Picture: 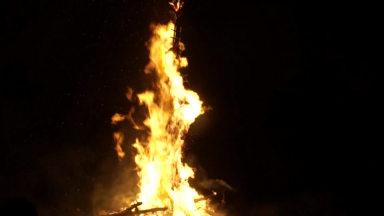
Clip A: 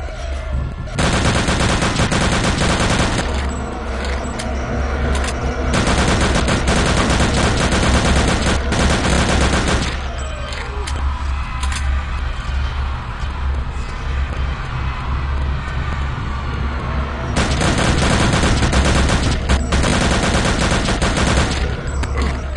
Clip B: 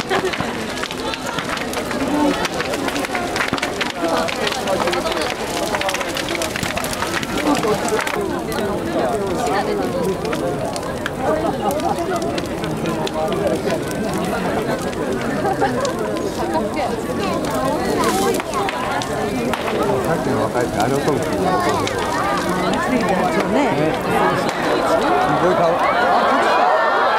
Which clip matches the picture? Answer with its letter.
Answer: B